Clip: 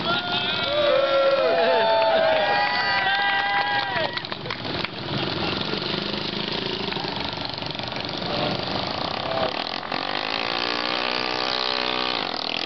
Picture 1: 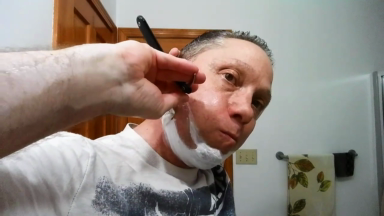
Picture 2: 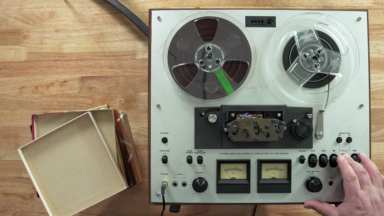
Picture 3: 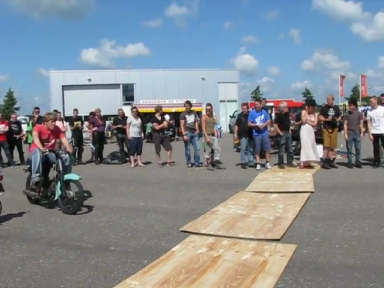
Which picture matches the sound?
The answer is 3